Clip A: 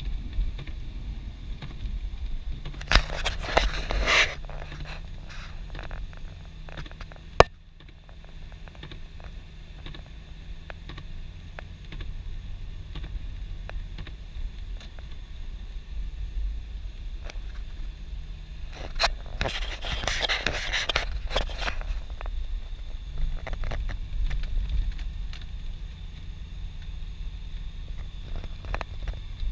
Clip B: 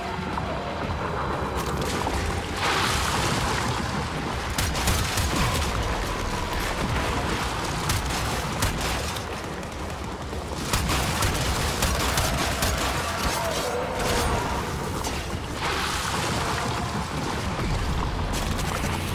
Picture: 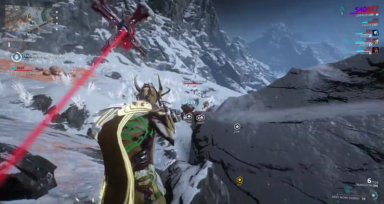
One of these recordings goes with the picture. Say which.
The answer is B